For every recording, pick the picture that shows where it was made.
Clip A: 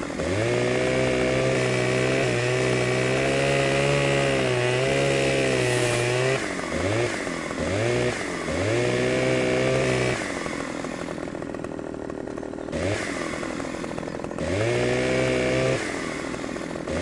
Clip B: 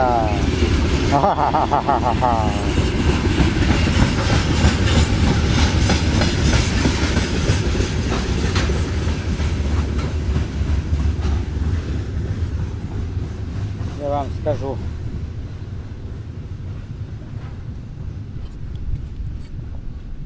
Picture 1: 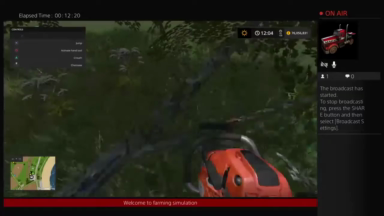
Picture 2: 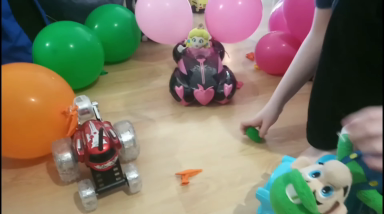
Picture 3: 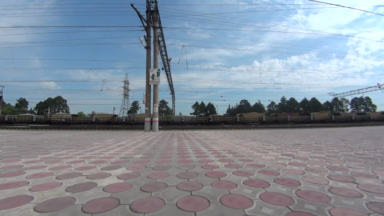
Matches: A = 1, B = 3